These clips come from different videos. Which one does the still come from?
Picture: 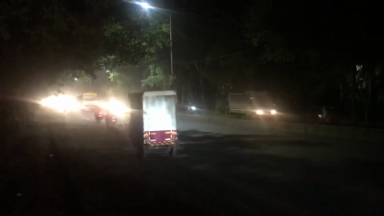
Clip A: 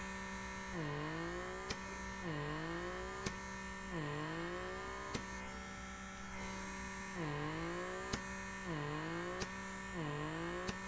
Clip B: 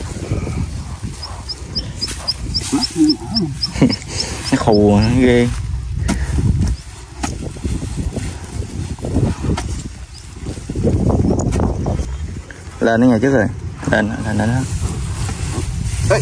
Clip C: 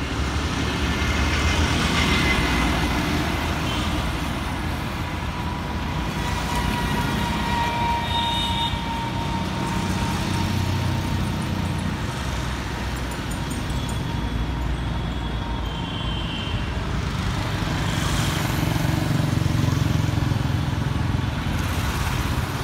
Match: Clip C